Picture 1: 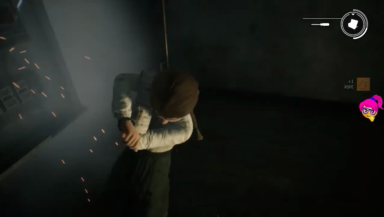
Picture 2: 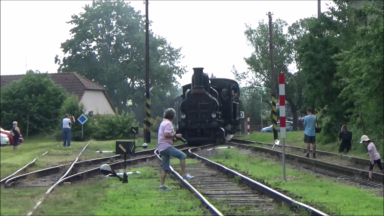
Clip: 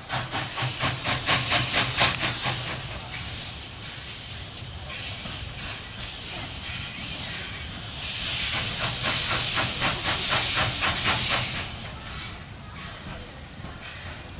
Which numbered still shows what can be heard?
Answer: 2